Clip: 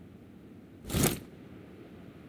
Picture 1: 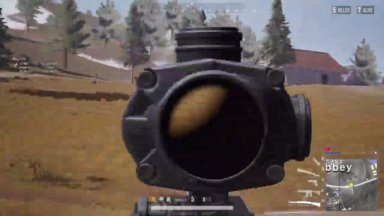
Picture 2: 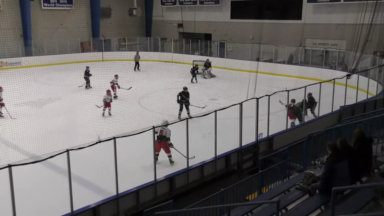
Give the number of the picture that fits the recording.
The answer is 1